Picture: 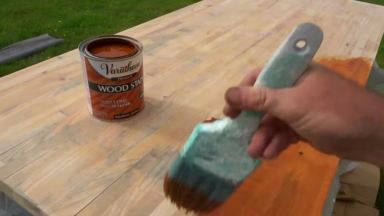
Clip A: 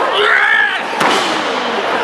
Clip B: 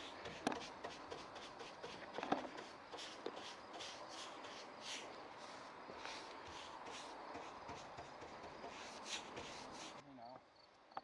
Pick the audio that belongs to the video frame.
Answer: B